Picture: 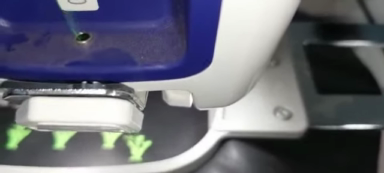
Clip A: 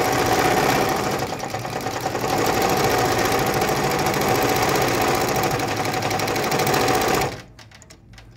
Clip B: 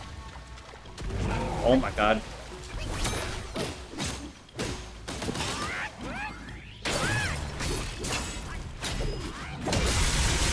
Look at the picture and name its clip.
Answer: A